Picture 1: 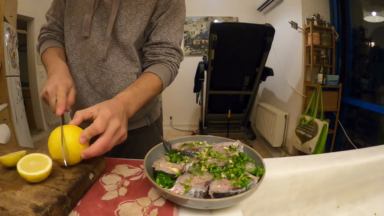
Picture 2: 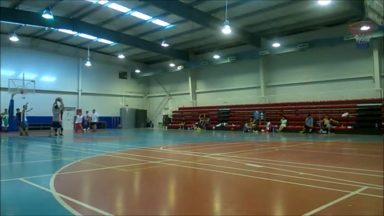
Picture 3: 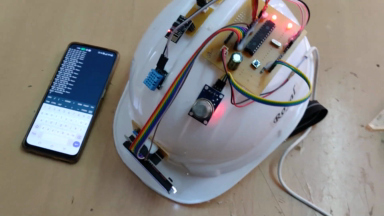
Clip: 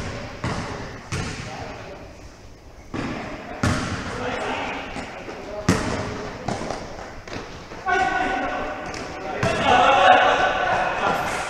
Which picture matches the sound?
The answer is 2